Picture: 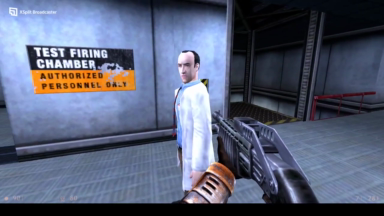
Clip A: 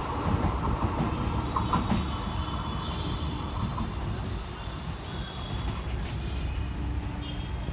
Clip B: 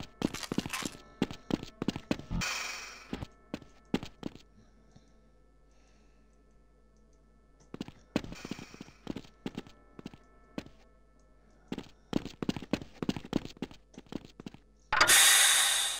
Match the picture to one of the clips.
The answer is B